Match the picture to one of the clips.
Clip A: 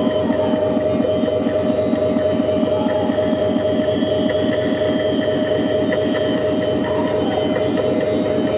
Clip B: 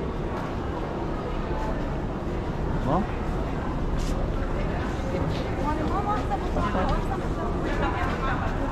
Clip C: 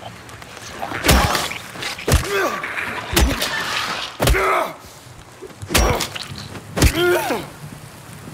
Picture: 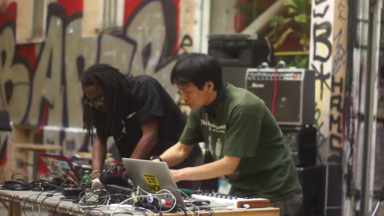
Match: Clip A